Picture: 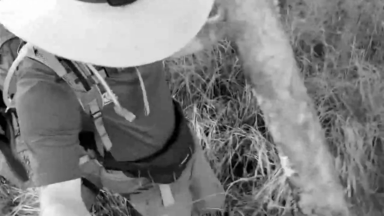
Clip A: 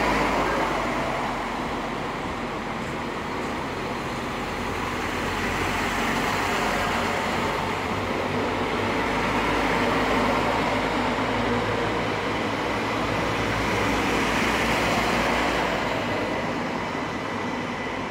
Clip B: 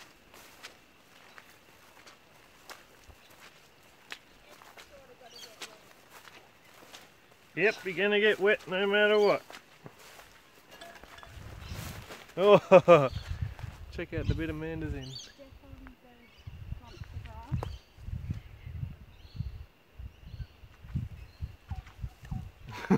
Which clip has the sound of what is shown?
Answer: B